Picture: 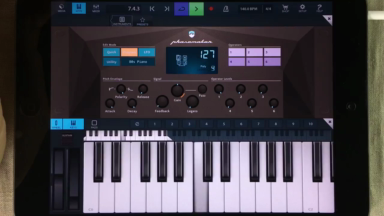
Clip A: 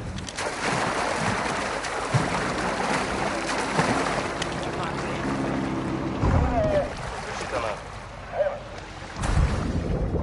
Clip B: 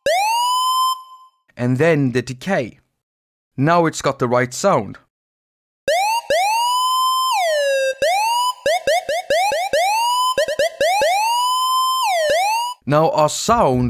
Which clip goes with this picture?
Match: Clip B